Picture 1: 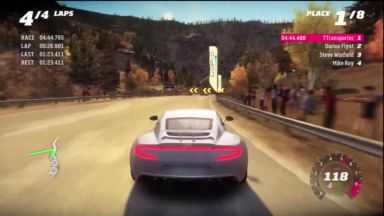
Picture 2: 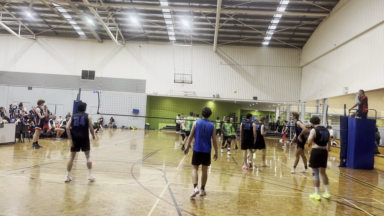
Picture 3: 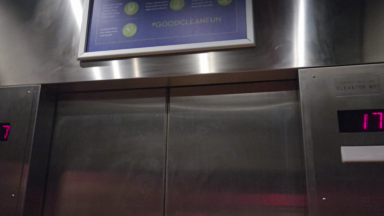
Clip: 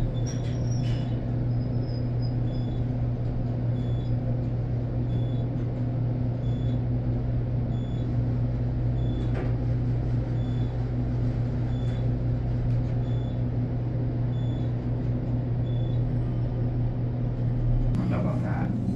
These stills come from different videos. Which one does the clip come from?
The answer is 3